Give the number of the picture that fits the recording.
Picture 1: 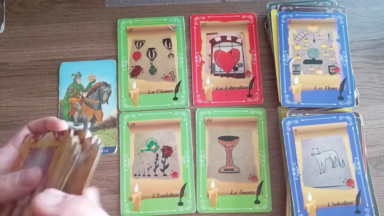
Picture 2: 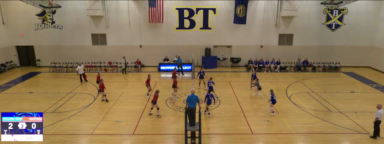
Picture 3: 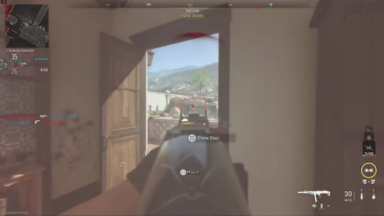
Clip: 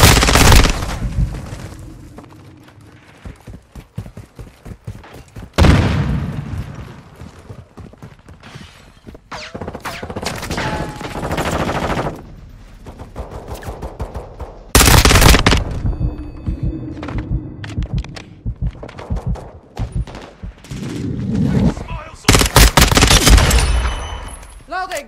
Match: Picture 3